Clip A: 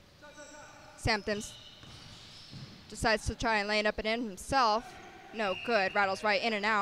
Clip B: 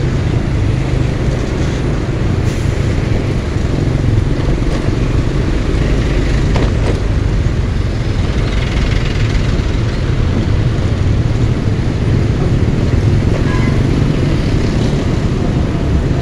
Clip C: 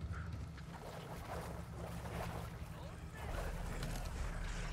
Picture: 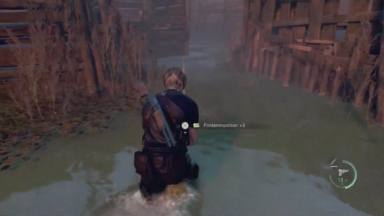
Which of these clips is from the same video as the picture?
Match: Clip C